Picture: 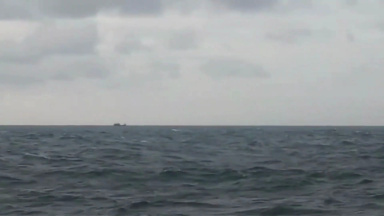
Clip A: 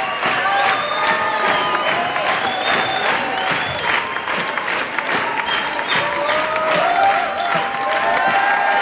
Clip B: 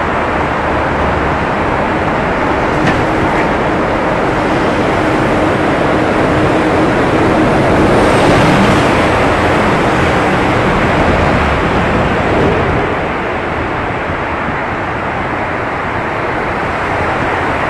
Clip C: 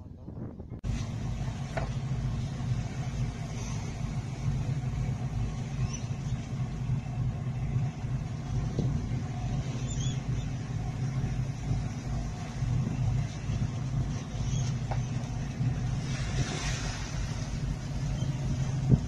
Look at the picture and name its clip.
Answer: C